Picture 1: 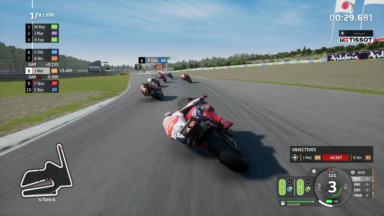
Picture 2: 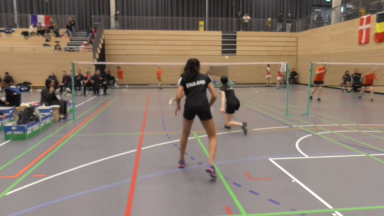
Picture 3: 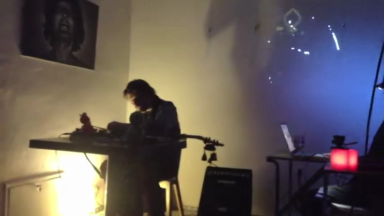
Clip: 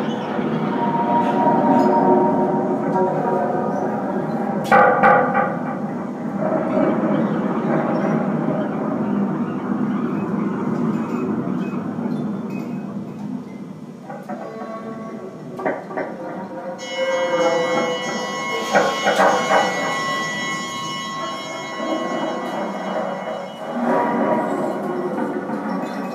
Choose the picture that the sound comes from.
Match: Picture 3